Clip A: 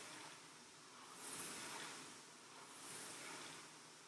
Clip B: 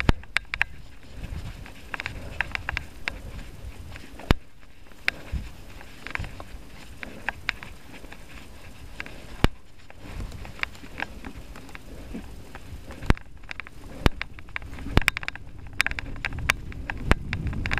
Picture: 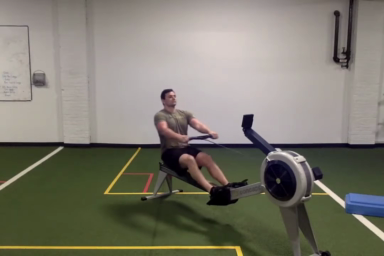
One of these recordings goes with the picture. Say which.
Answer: A